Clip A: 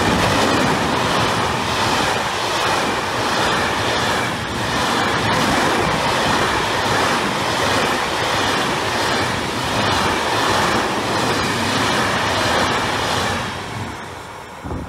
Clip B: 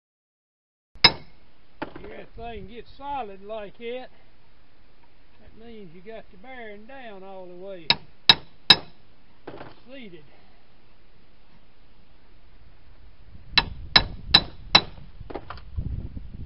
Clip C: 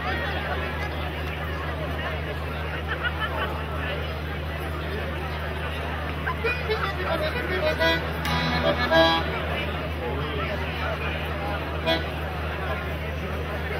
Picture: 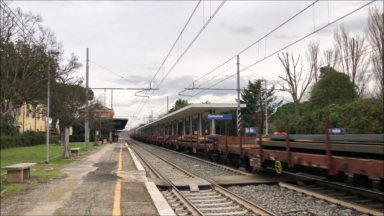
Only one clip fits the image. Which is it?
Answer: A